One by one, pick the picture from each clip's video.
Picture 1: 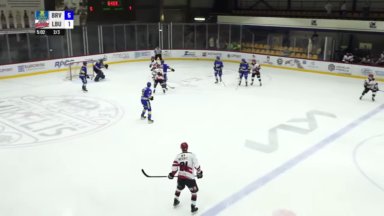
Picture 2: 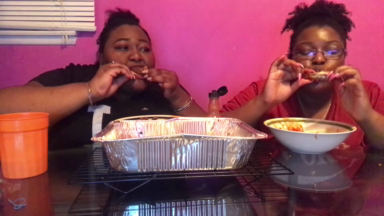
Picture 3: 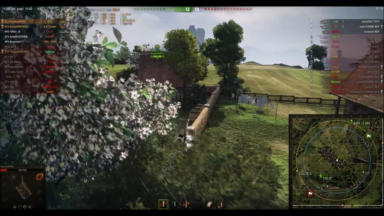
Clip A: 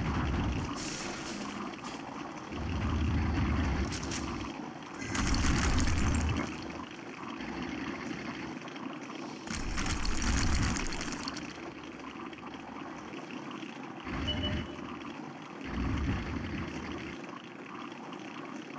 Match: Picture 3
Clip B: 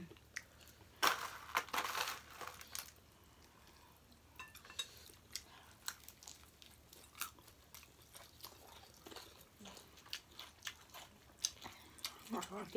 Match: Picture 2